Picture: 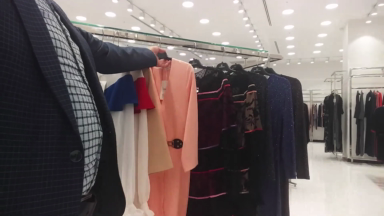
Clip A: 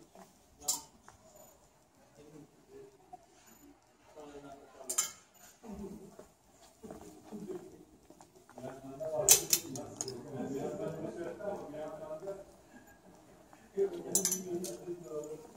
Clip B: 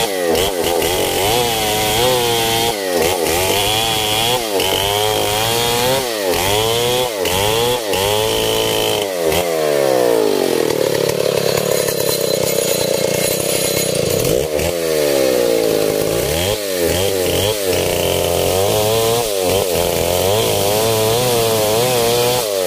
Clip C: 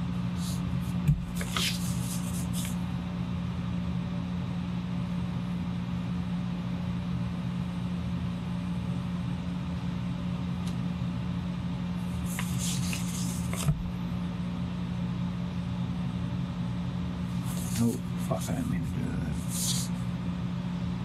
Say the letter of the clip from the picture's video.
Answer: A